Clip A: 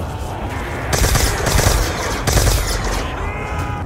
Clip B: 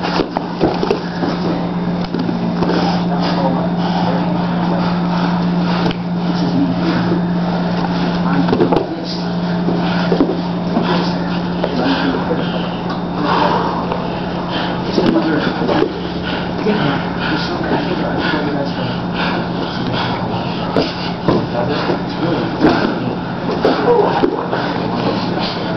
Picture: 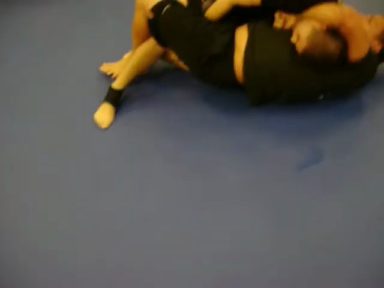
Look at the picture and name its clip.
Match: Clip B